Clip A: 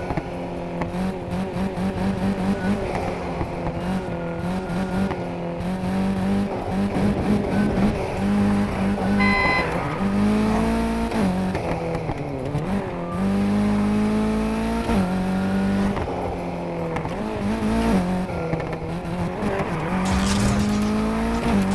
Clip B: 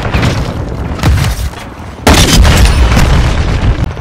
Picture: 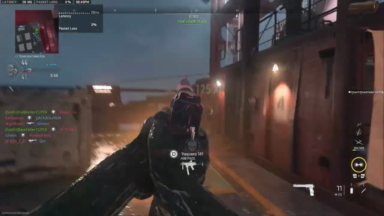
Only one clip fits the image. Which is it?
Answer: B